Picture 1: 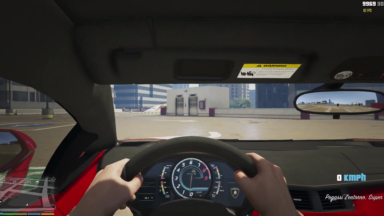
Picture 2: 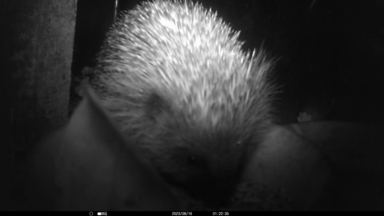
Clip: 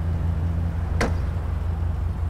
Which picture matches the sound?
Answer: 1